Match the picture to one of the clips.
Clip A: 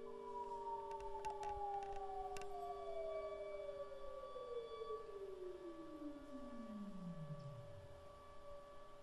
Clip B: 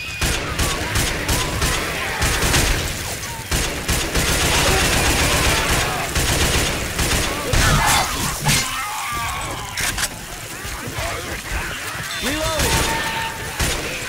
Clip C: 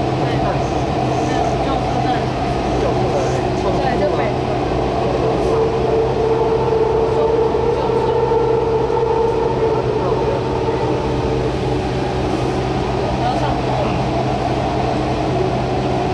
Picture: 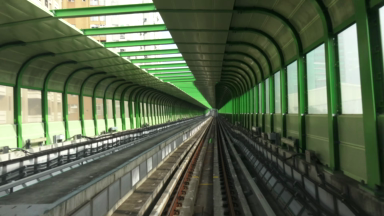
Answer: C